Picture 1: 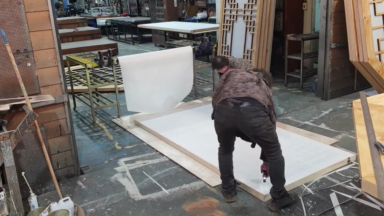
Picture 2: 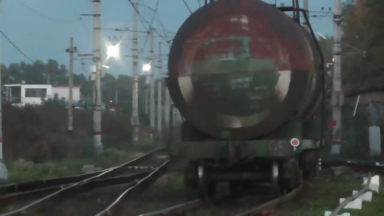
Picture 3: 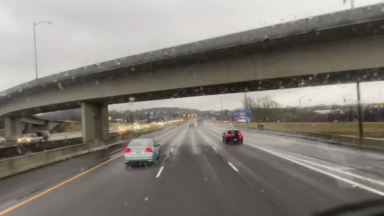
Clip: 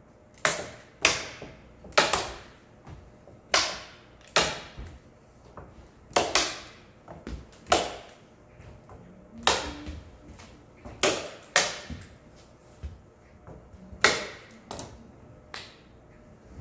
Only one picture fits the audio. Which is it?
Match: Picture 1